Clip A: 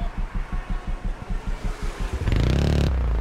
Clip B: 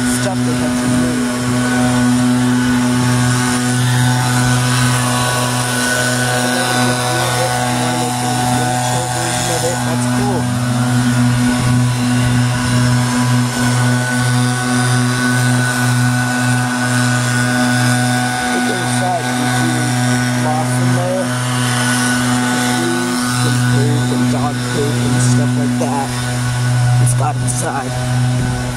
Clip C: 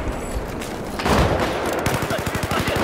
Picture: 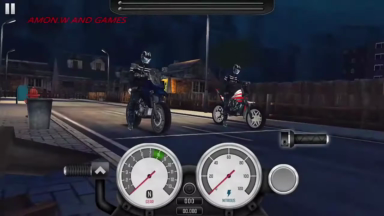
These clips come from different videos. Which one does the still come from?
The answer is A